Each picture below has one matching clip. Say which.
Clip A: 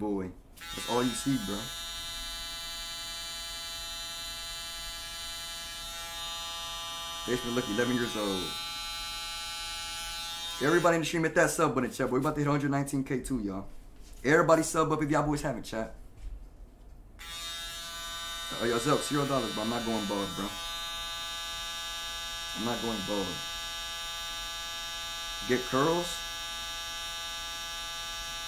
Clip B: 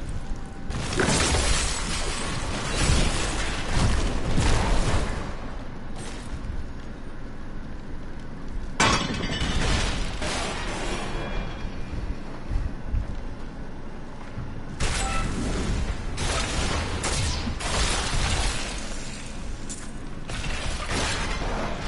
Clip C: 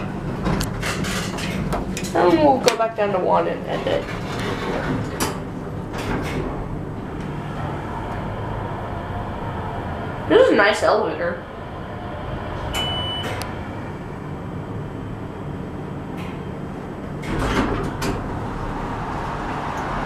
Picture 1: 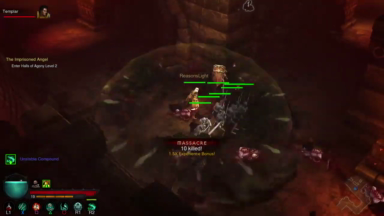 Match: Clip B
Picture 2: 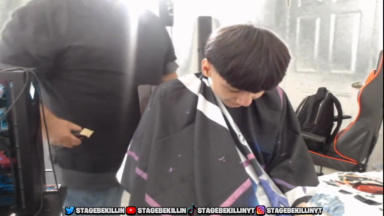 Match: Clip A